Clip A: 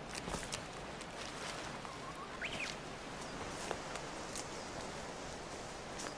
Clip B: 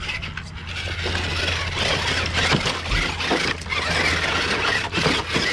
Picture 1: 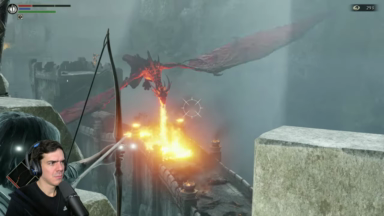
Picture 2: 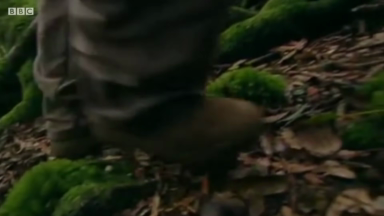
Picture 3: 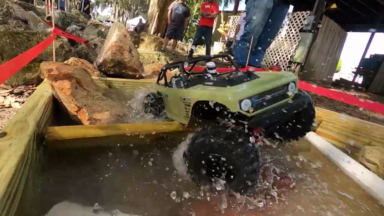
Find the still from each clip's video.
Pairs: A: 2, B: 3